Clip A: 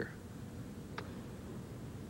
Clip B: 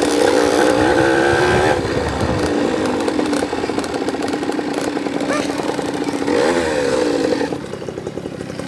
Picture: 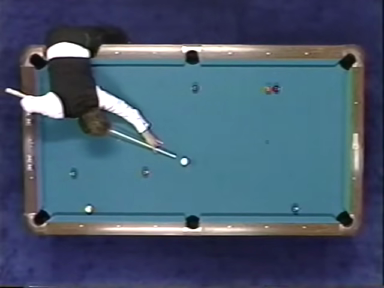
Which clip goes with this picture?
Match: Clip A